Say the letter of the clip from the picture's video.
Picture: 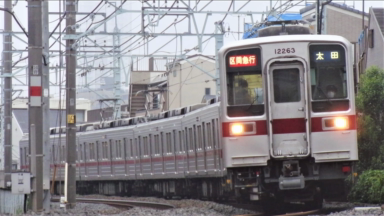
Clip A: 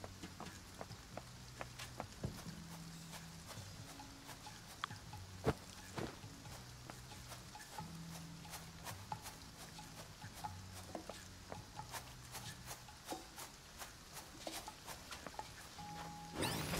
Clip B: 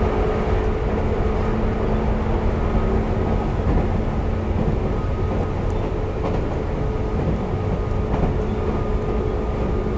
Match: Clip B